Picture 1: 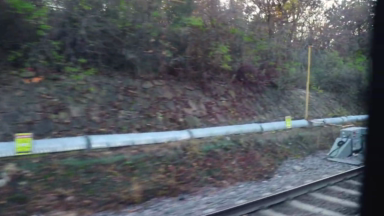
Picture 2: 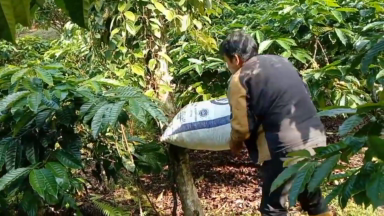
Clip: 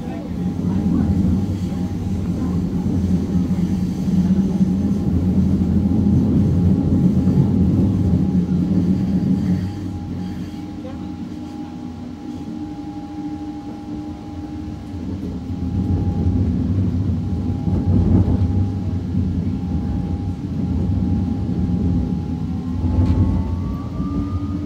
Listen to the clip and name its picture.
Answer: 1